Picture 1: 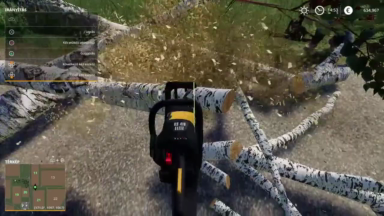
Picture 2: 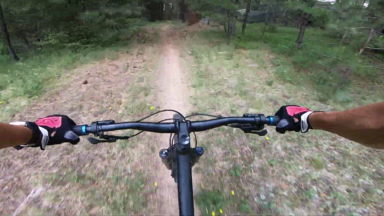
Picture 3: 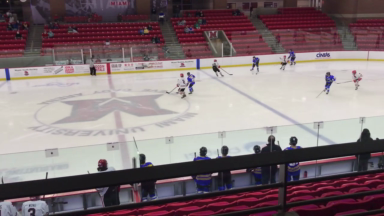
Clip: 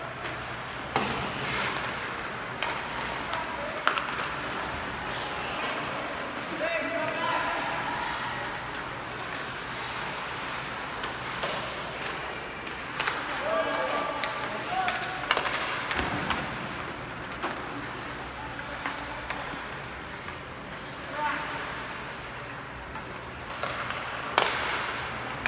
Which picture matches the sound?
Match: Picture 3